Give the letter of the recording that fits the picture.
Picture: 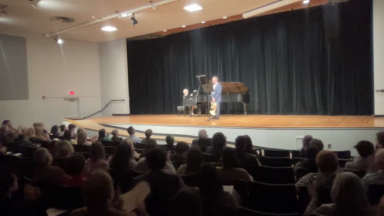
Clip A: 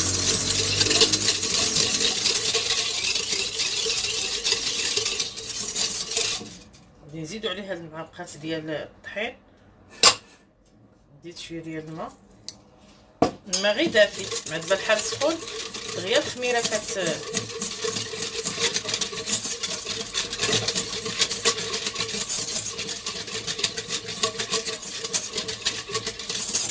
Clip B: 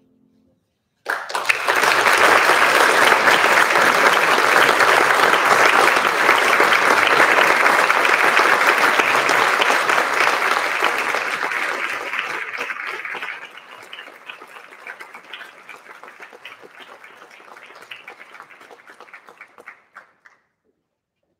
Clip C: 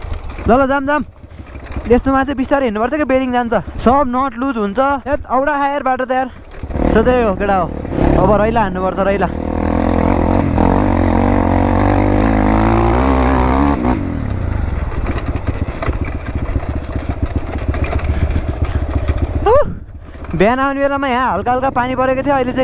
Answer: B